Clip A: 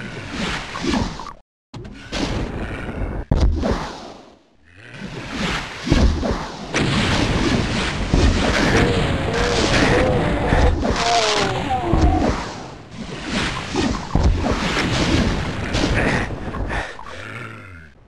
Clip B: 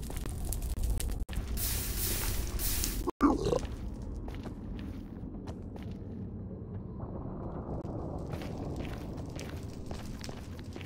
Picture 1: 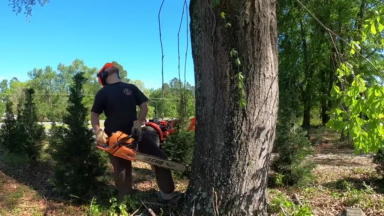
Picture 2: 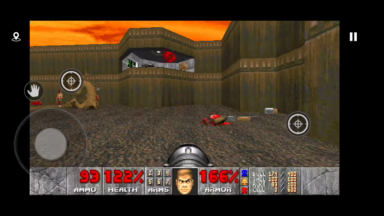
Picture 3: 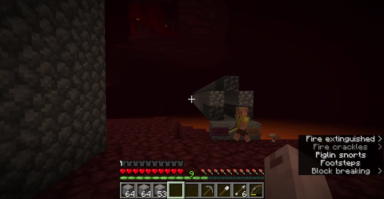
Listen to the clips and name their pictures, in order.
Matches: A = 2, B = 3